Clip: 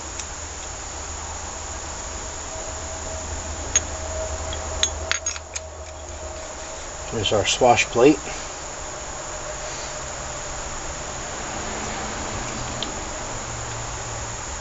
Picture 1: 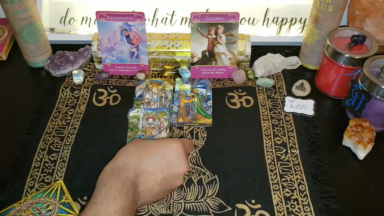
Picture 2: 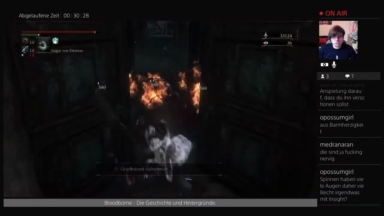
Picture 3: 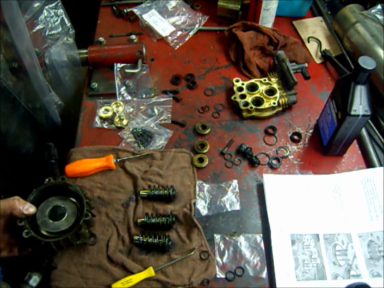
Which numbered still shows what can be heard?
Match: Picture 3